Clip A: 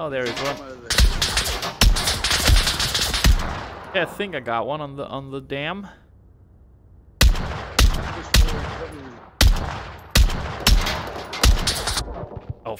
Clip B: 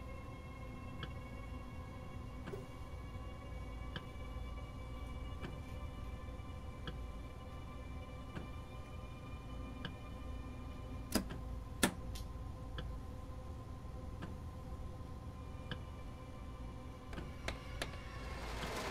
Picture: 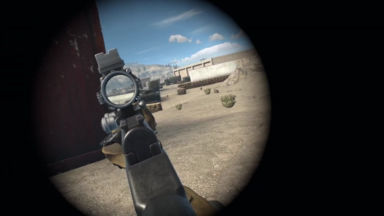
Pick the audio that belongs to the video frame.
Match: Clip A